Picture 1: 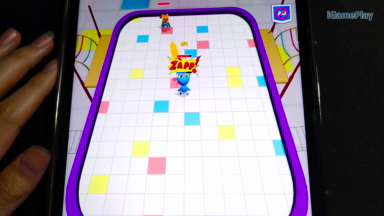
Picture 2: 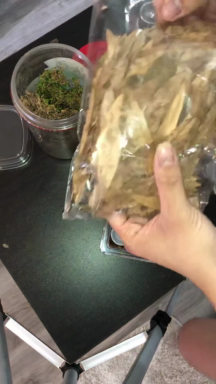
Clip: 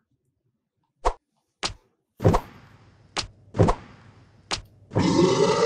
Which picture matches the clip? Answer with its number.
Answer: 1